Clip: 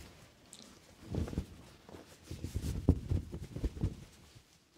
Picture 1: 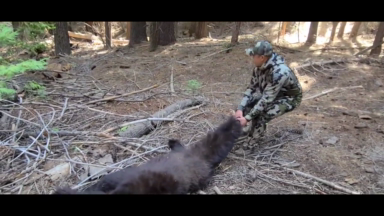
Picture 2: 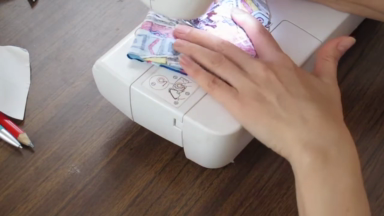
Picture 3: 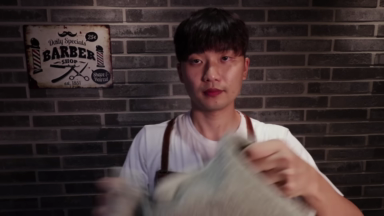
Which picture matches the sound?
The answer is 3